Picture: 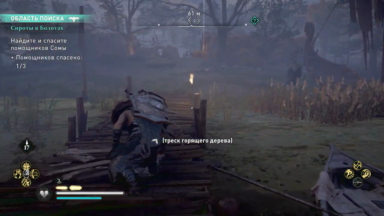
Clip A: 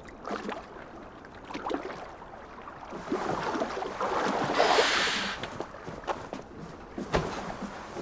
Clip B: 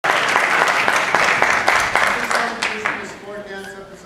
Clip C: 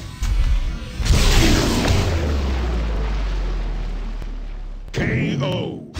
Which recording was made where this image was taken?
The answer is A